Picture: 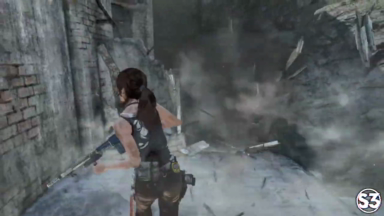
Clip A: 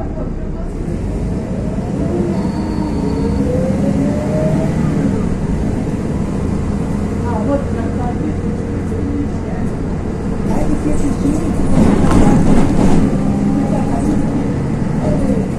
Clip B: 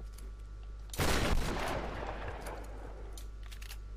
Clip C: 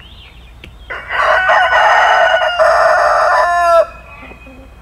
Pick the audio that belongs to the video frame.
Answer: B